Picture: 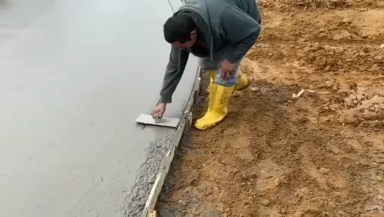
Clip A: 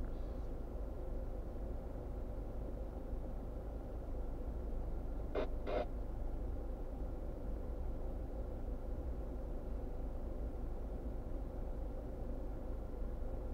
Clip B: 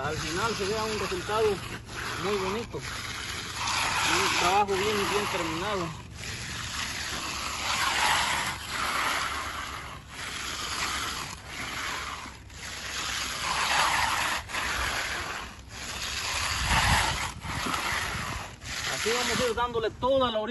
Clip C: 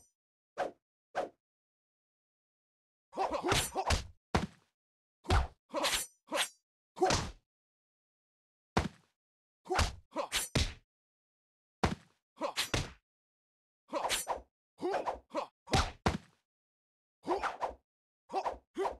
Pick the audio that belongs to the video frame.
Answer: B